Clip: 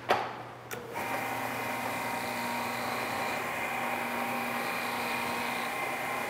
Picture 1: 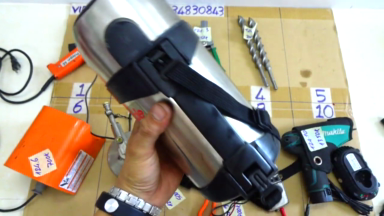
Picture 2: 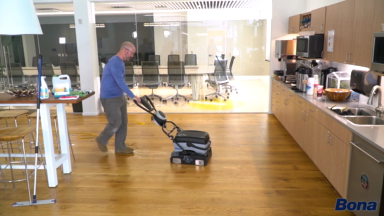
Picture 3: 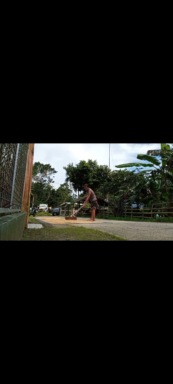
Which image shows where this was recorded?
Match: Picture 2